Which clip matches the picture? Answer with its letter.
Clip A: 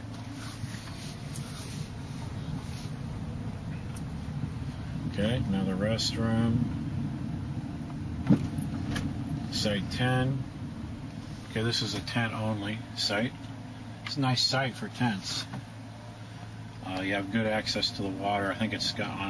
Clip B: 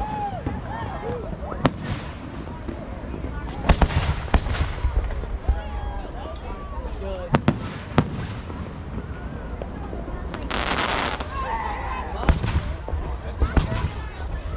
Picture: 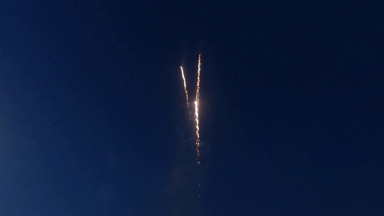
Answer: B